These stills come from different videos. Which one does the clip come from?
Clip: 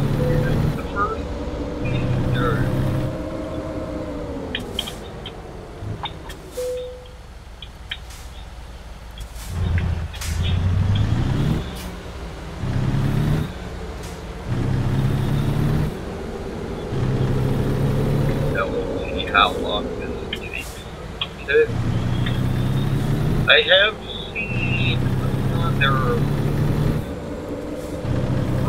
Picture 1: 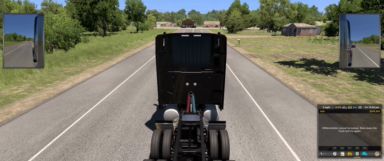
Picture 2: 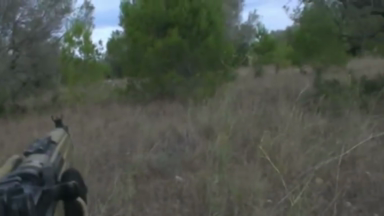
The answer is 1